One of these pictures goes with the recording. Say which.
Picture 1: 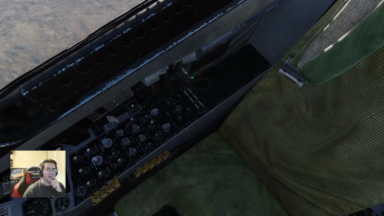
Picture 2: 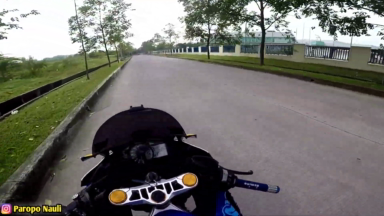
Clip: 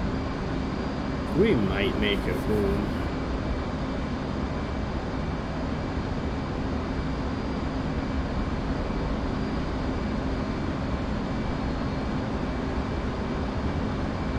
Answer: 1